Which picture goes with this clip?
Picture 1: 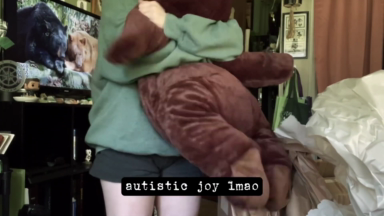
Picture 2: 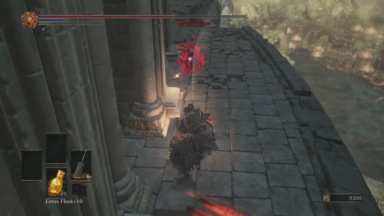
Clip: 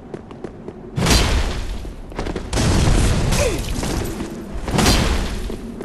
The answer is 2